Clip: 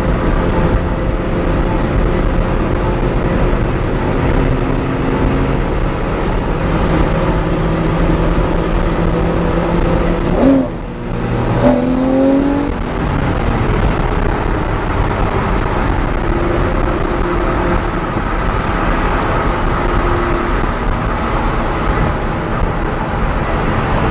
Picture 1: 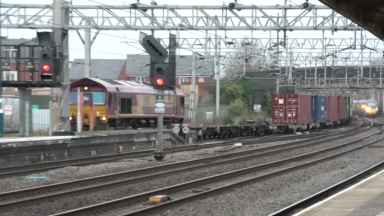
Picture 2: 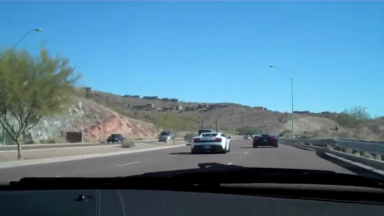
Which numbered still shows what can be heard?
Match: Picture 2